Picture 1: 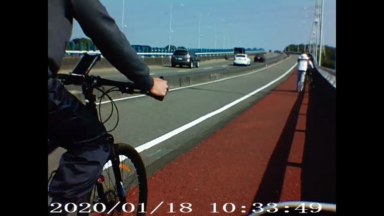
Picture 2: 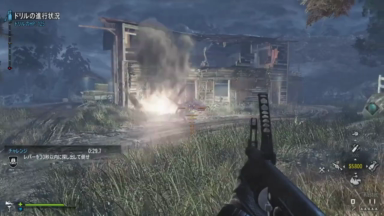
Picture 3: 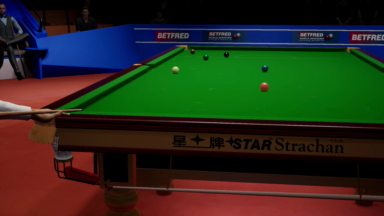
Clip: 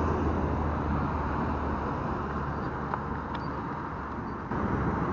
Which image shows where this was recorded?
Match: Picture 1